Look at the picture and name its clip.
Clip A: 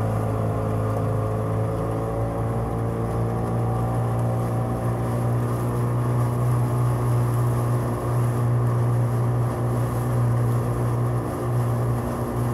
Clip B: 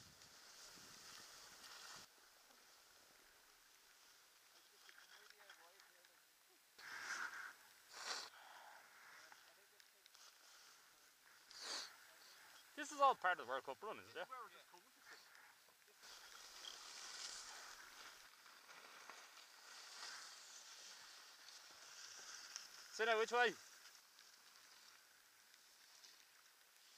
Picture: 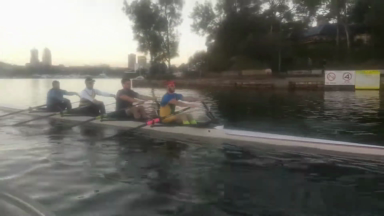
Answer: A